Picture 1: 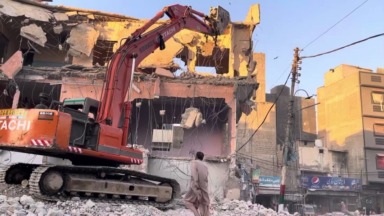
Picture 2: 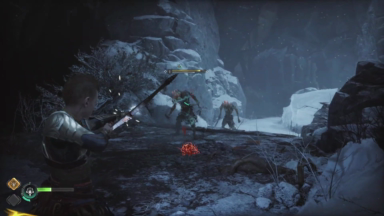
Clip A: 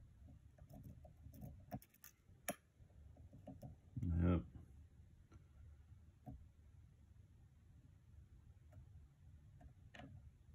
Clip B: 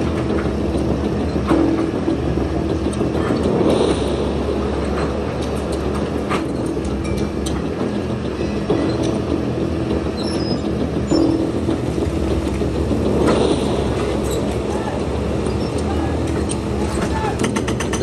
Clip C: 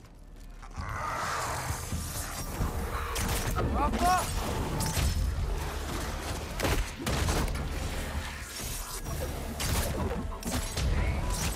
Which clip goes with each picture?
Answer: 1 B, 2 C